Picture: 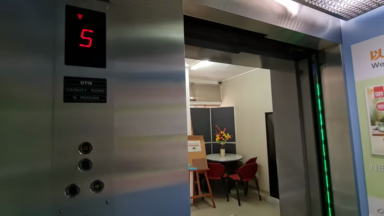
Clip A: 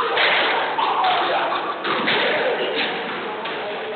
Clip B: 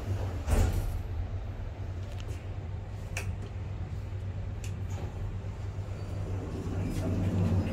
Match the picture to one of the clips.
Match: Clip B